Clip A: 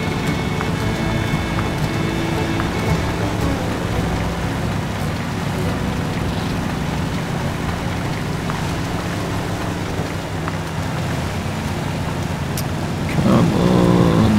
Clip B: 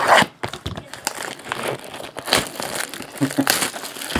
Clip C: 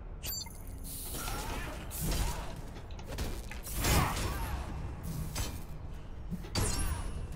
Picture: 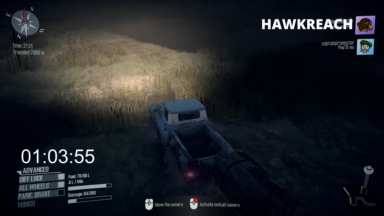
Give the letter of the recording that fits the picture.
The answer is A